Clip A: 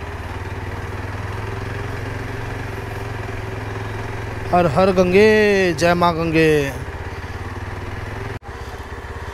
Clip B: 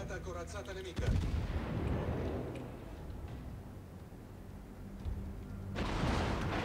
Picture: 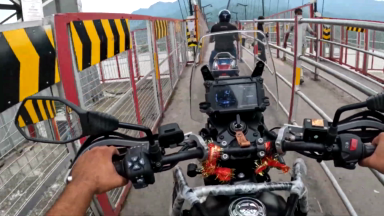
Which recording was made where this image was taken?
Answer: A